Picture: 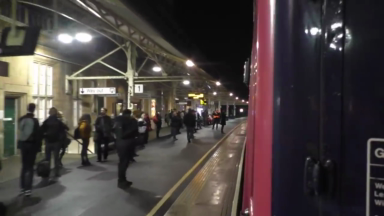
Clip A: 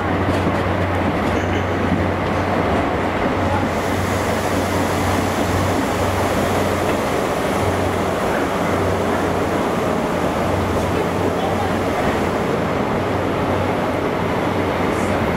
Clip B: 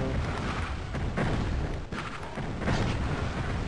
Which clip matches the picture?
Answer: A